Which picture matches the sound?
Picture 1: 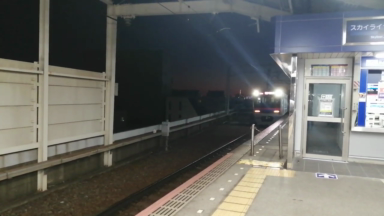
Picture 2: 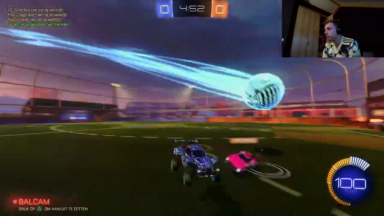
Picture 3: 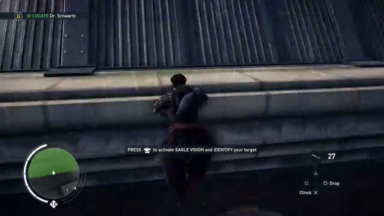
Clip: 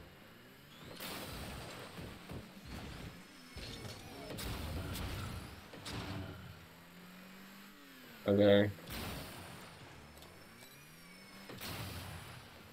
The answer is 2